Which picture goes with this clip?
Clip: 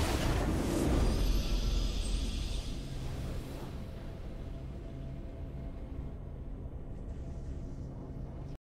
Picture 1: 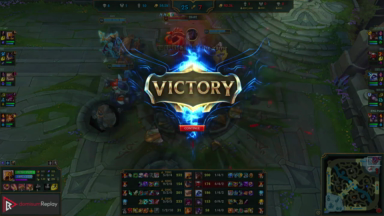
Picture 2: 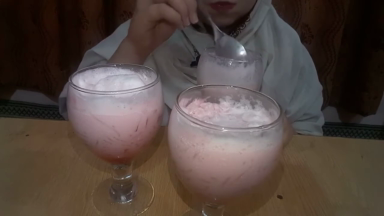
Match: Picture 1